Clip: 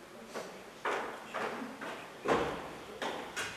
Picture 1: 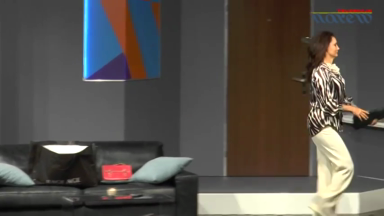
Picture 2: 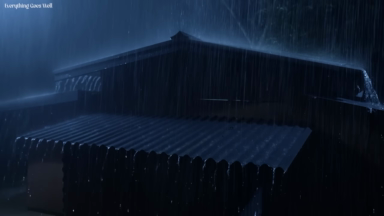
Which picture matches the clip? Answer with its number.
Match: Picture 1